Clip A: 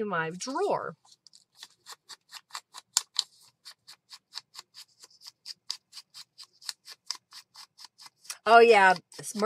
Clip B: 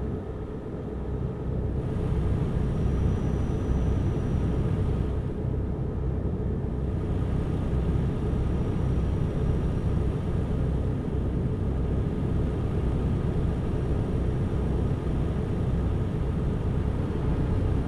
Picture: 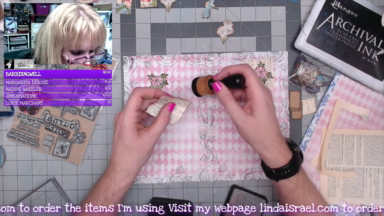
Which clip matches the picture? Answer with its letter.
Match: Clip A